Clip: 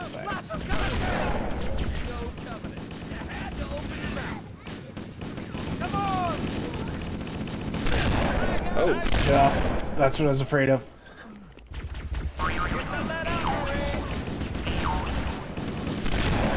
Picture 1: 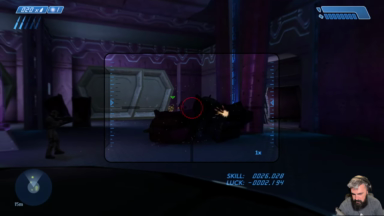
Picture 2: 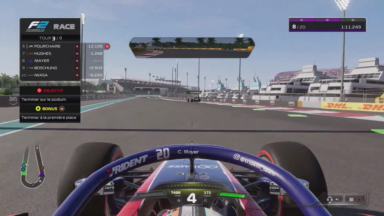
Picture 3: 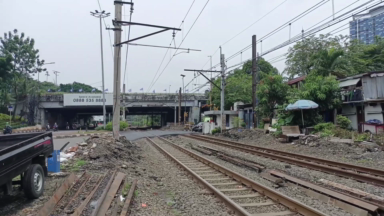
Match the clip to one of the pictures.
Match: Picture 1